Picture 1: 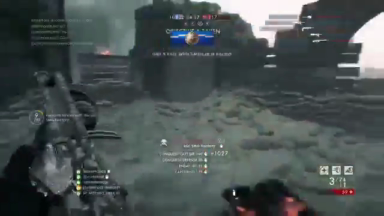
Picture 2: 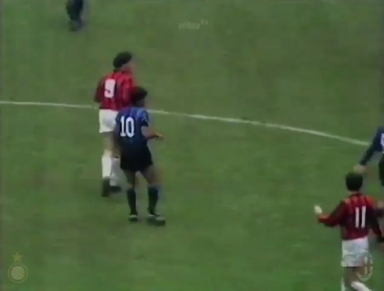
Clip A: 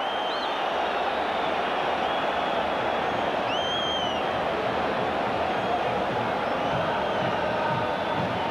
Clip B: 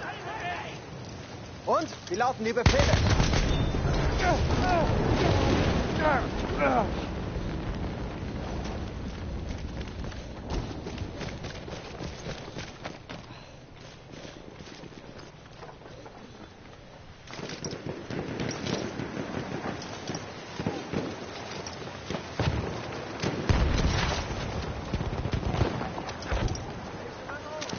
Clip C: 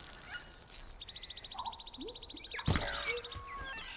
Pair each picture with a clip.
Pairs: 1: B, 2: A